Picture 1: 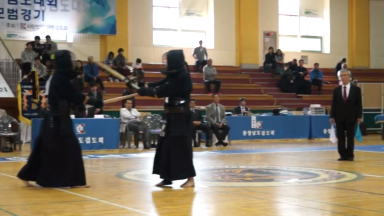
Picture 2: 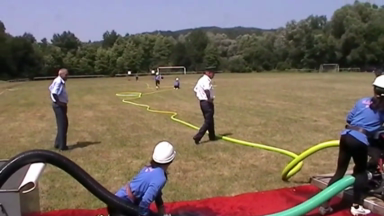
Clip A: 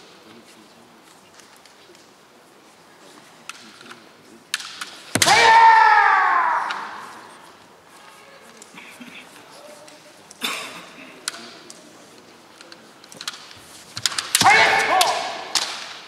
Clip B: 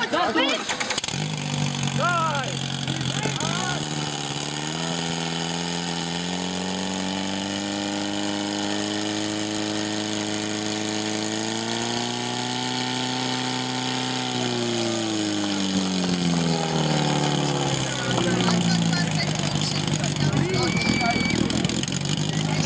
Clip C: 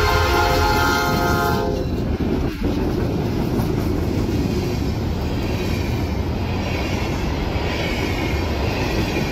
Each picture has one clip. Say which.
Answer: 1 A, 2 B